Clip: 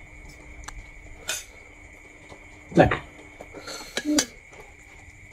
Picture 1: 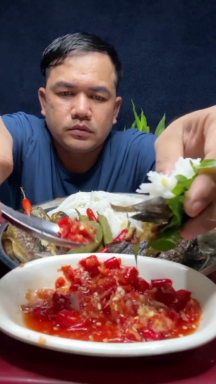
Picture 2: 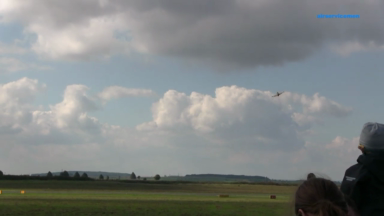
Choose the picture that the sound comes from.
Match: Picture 1